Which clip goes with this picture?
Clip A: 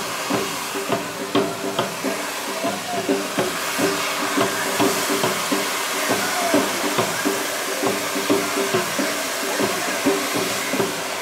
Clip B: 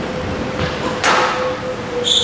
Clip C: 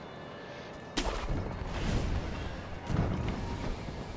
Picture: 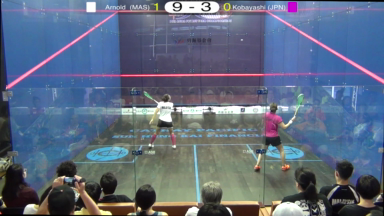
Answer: B